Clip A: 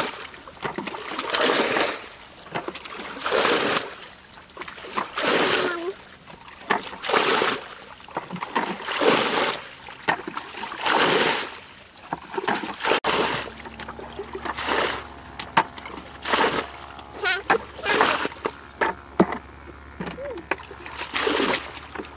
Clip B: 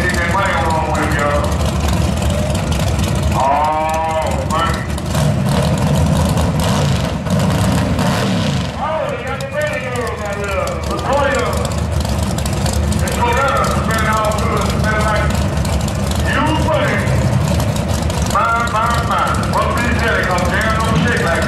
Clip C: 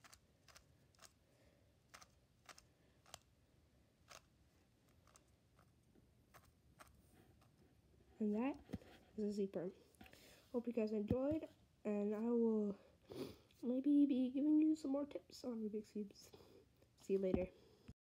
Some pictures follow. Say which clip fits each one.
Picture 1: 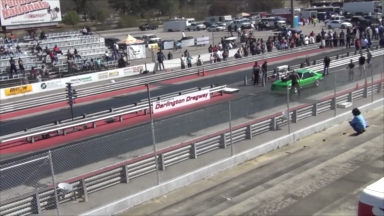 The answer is B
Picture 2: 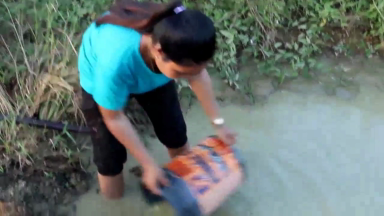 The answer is A